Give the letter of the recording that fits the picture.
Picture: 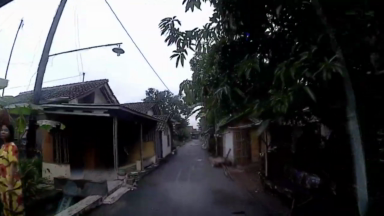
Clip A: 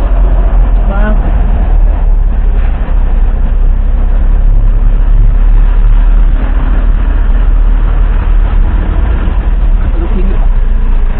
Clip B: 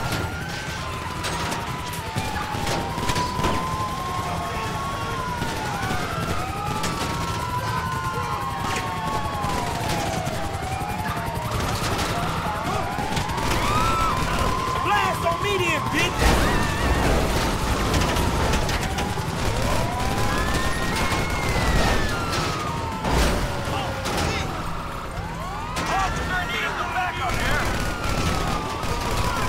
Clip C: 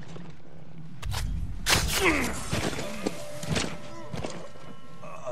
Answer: A